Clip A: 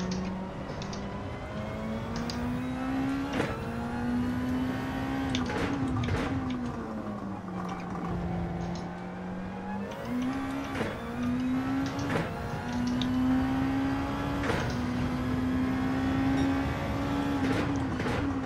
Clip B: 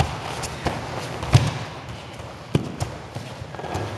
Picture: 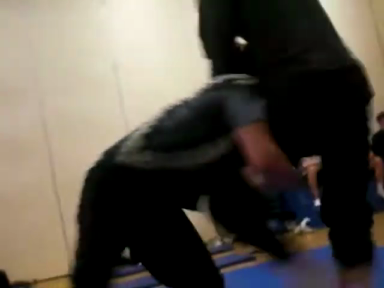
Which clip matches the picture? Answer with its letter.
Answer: B